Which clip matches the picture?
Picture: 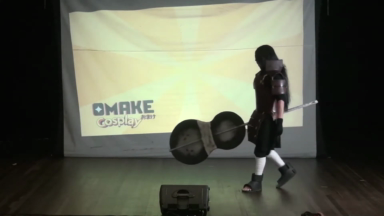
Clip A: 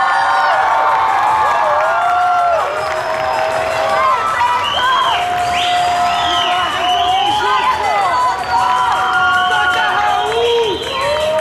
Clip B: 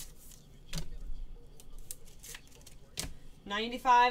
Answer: A